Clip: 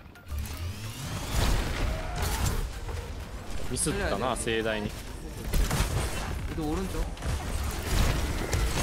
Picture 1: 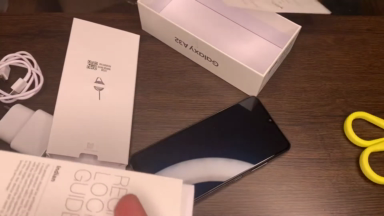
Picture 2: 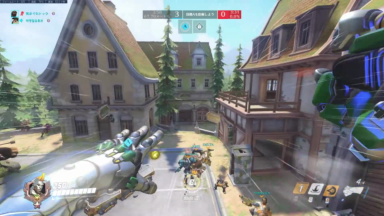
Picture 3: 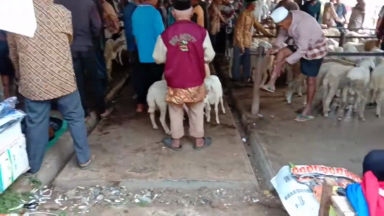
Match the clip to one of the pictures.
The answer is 2